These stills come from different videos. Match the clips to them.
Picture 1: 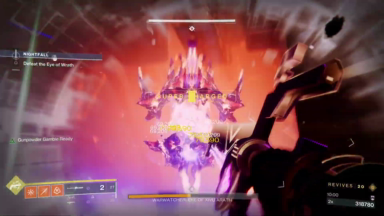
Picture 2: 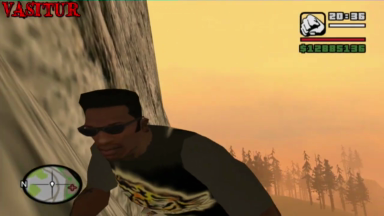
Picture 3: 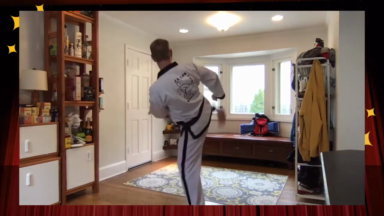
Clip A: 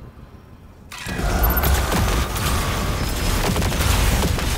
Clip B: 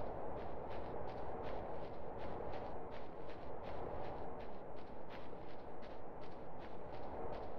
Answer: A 1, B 2